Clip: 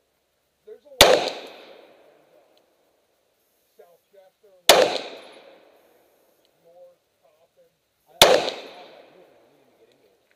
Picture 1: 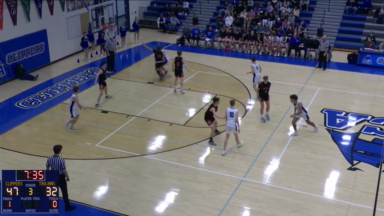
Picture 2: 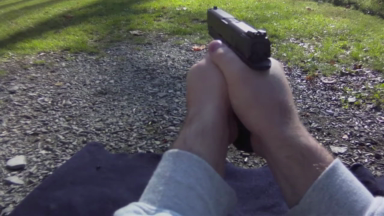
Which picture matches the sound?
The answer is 2